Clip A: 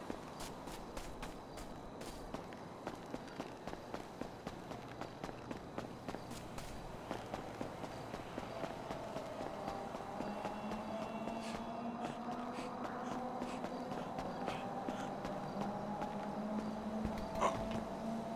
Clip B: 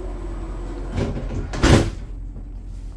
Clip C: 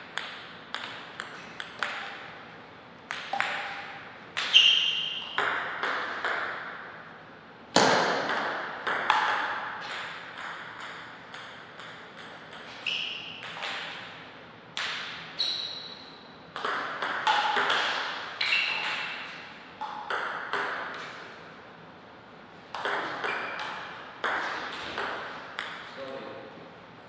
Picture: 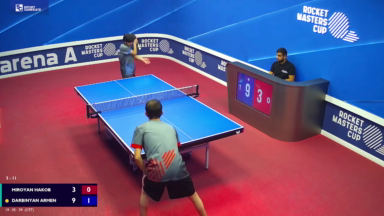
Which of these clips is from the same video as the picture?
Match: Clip C